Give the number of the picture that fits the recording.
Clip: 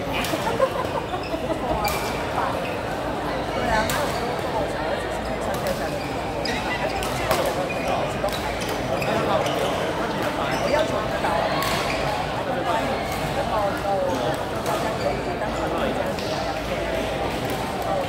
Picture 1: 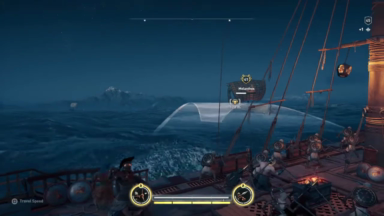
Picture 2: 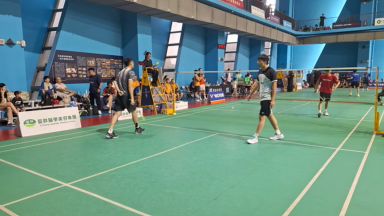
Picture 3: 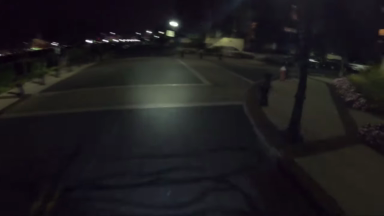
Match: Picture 2